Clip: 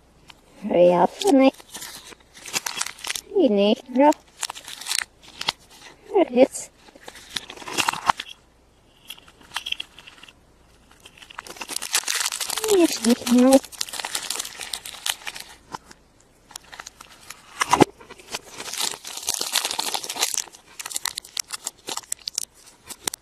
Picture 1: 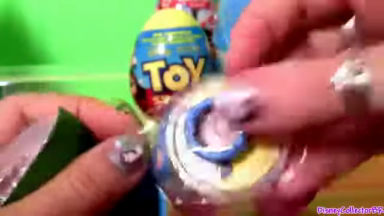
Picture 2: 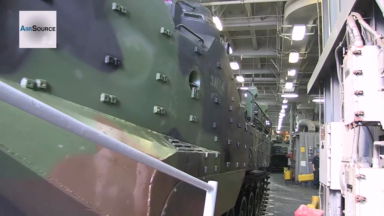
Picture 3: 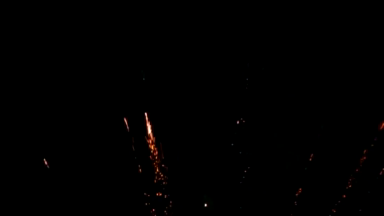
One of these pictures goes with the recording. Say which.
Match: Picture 1